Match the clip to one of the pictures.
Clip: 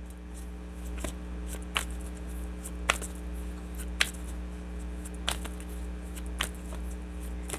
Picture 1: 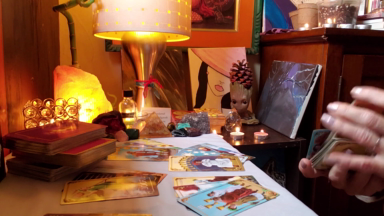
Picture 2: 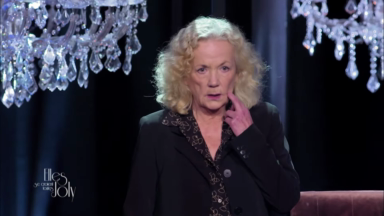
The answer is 1